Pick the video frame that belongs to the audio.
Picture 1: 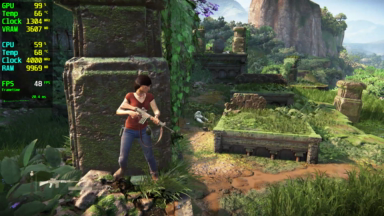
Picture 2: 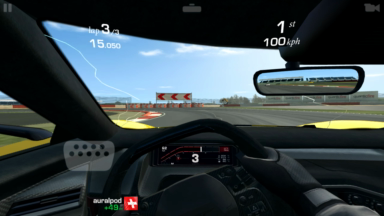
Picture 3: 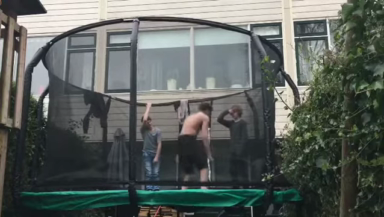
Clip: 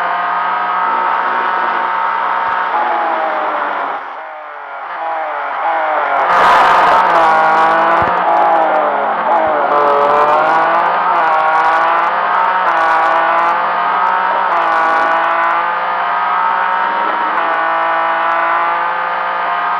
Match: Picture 2